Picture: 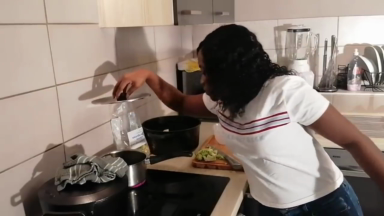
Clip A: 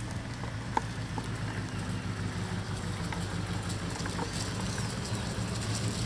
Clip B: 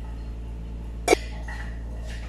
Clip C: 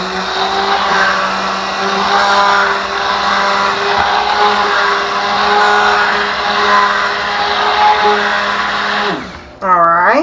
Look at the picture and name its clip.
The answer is B